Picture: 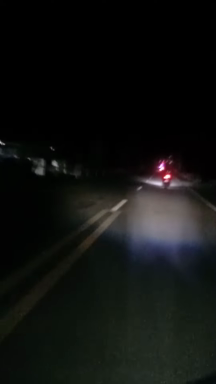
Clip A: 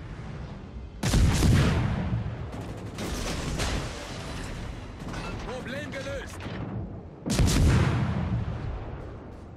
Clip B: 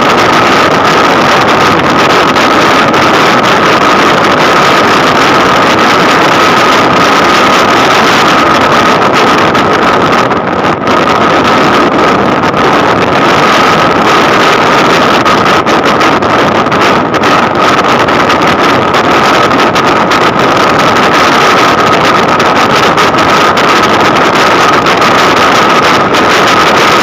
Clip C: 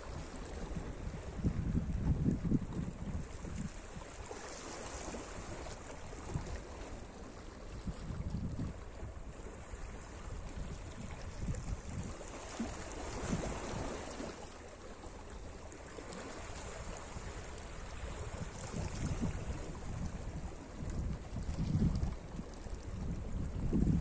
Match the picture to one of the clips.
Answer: B